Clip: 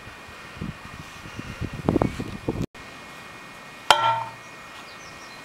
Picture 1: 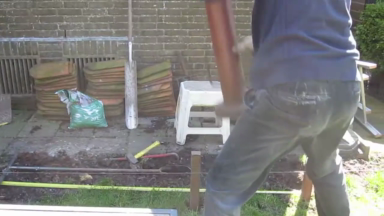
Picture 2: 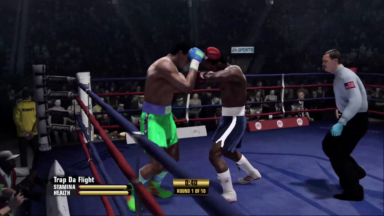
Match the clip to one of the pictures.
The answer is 1